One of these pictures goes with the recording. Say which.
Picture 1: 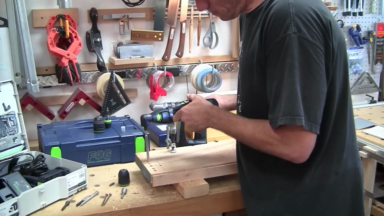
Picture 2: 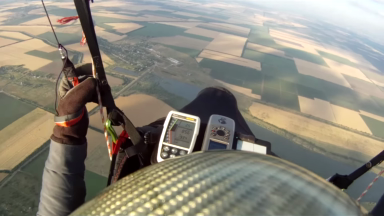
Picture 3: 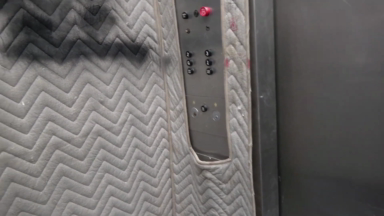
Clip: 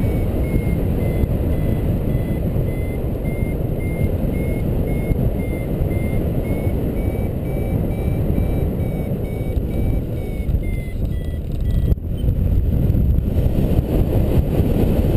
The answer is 2